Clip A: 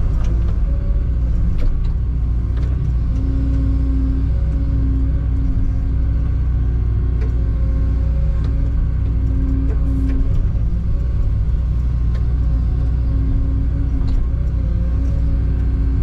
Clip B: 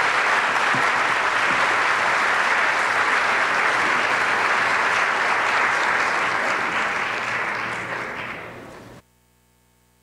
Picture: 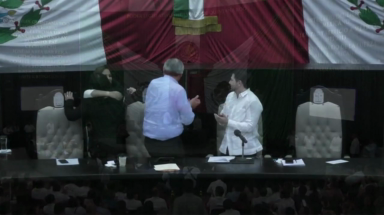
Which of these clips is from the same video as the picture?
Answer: B